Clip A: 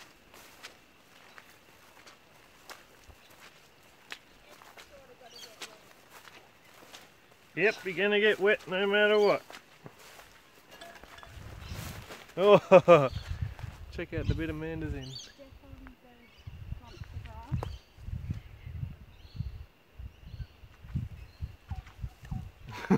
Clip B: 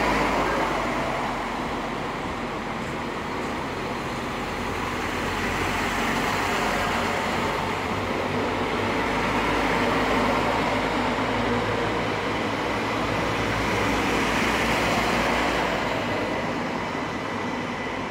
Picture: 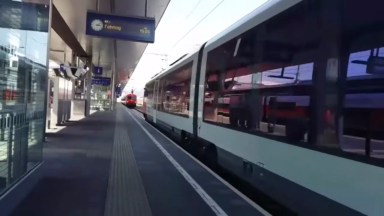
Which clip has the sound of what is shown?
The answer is B